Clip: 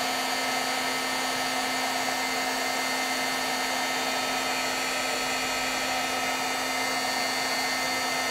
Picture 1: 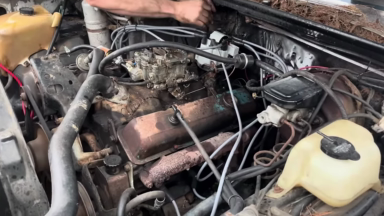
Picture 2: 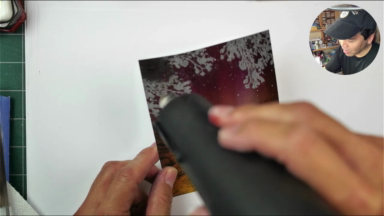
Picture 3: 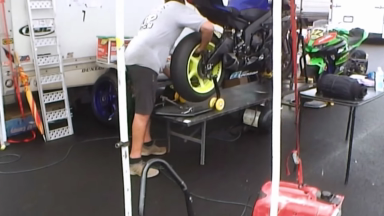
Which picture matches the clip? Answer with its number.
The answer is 2